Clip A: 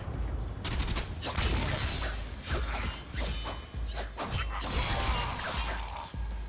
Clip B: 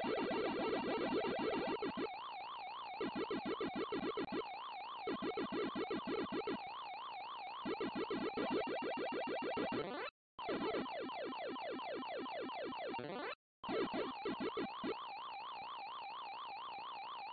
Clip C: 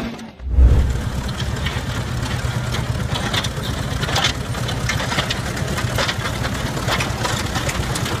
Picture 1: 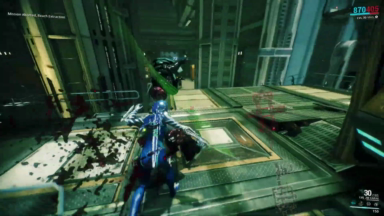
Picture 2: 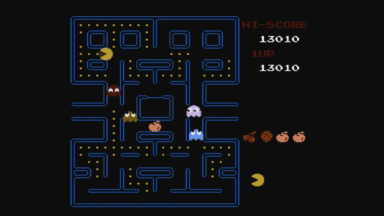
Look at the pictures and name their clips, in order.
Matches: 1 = A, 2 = B